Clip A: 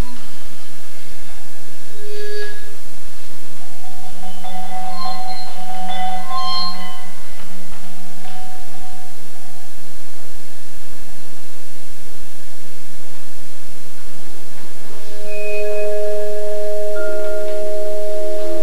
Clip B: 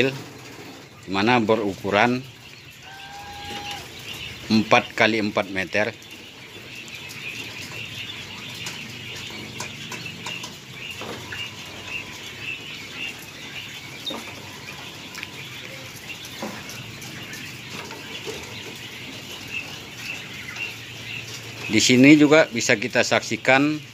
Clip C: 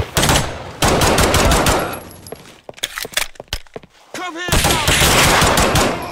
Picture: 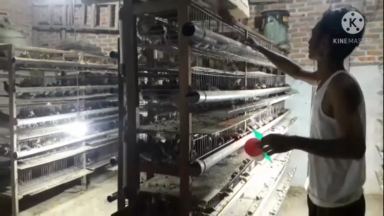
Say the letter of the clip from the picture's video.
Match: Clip B